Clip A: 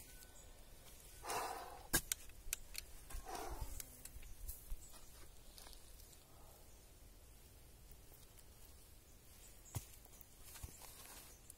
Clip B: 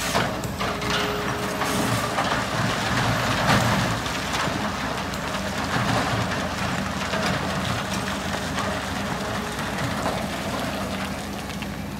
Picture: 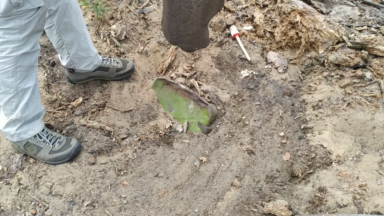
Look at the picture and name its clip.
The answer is A